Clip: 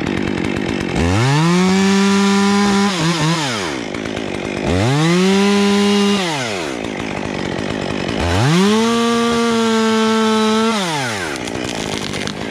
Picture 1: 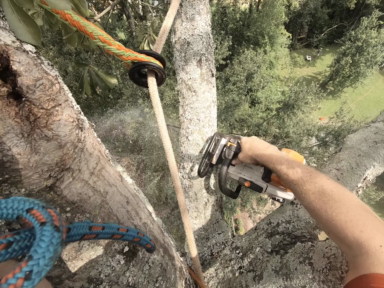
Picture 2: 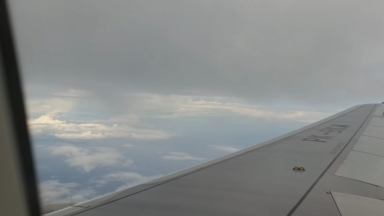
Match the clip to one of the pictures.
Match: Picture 1